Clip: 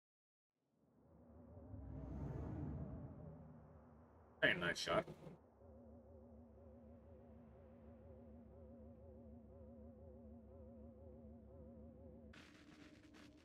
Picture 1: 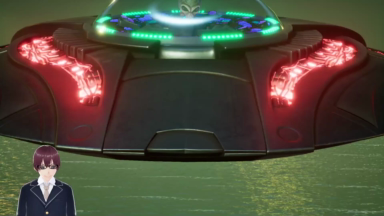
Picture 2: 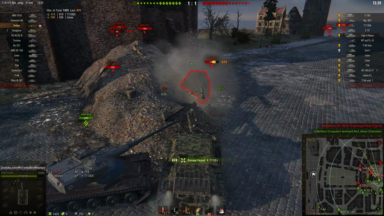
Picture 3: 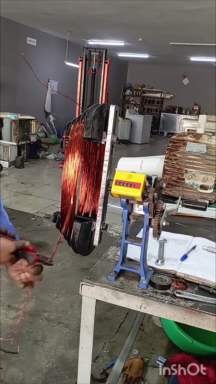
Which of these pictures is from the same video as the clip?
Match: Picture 1